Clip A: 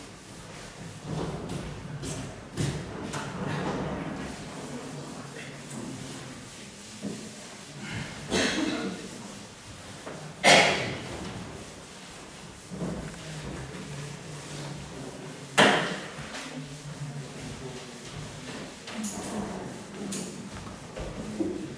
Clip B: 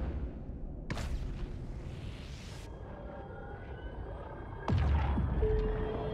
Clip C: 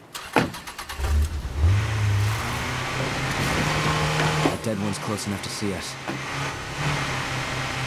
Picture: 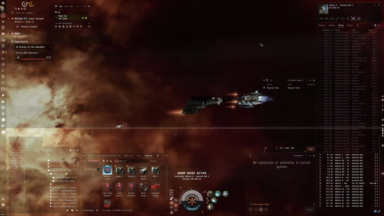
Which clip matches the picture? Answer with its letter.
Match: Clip B